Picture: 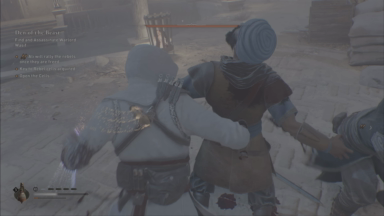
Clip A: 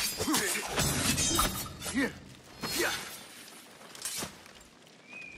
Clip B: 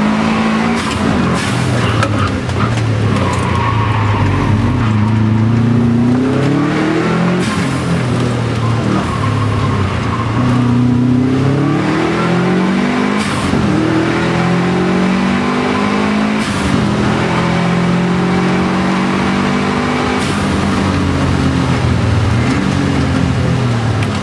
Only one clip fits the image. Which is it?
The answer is A